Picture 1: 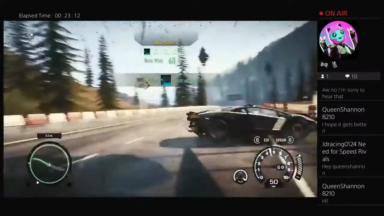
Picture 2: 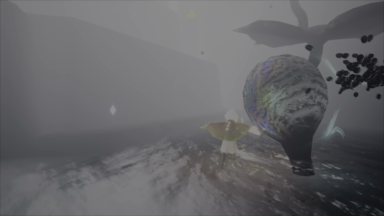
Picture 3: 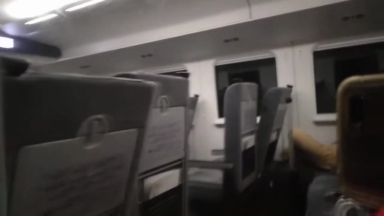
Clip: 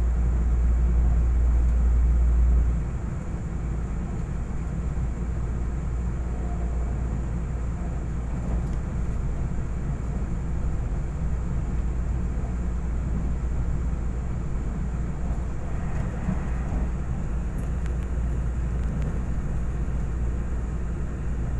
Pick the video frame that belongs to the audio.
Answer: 3